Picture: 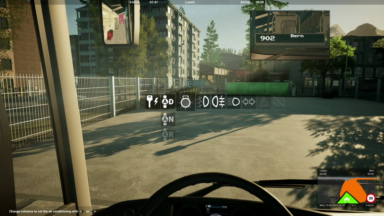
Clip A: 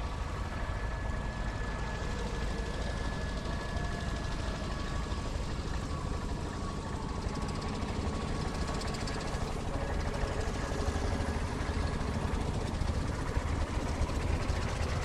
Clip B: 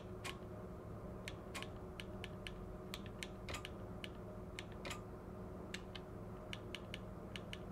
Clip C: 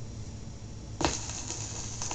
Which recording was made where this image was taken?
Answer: B